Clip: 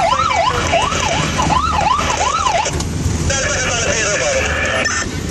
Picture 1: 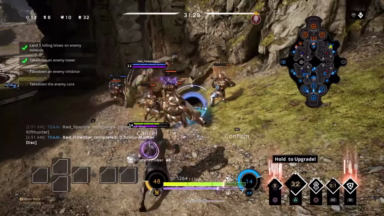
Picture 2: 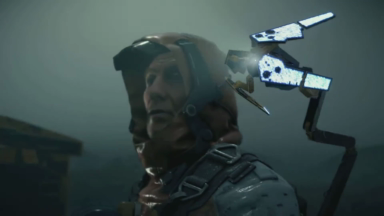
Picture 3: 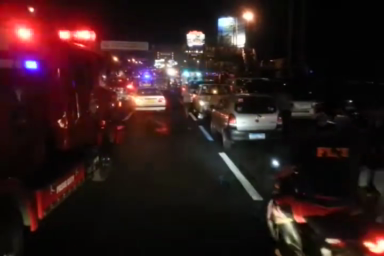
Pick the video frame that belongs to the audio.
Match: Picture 3